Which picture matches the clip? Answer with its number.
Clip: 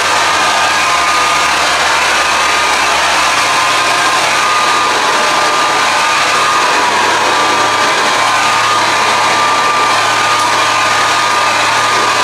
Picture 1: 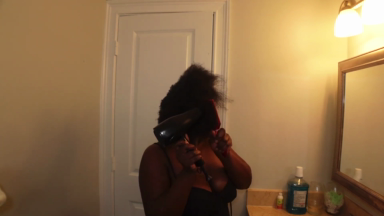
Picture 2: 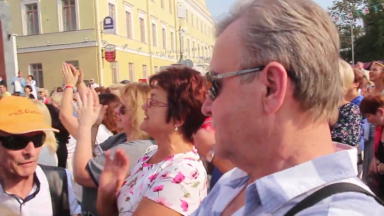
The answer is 1